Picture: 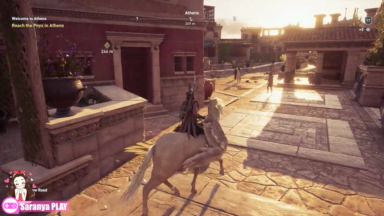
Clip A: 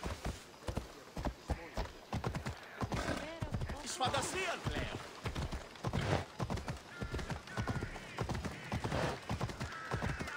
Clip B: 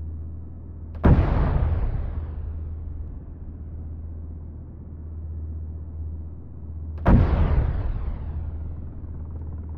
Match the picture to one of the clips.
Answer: A